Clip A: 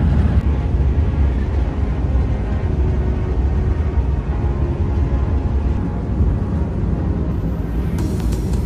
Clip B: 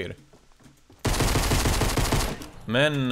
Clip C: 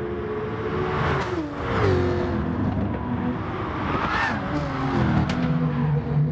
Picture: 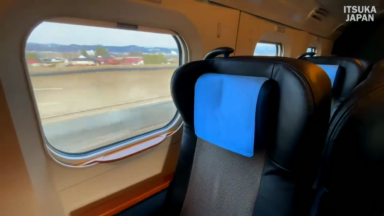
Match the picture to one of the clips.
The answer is A